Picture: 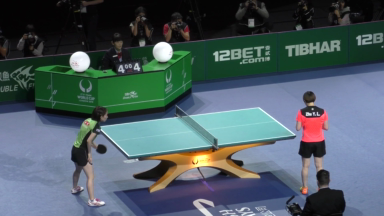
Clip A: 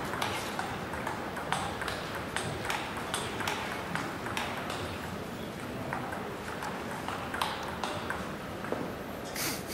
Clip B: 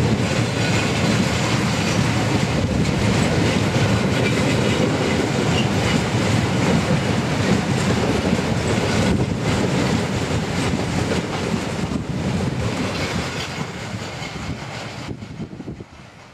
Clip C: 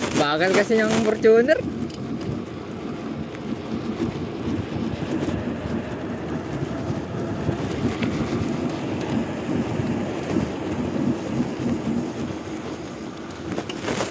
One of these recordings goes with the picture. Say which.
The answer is A